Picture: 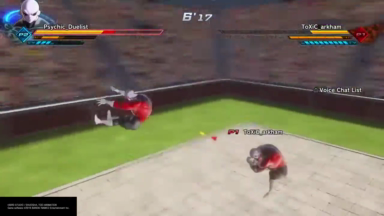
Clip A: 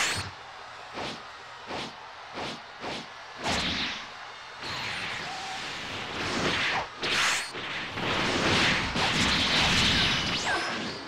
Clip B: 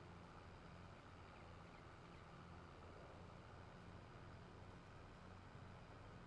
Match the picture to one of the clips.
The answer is A